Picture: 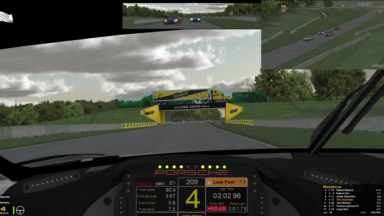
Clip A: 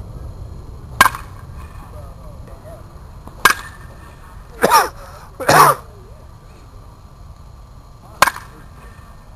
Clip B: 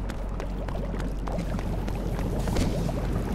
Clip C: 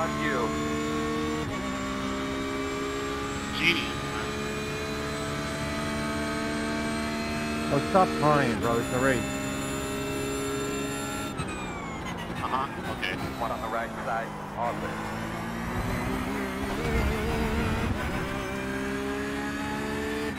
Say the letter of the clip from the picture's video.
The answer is C